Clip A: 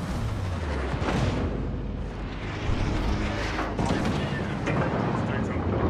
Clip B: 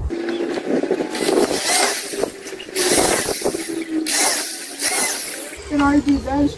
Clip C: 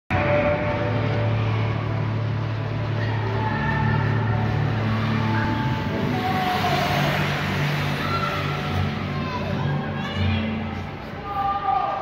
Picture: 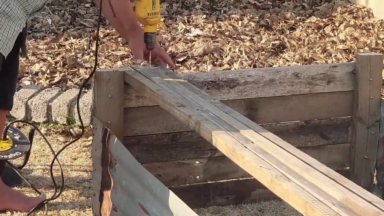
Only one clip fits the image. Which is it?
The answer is B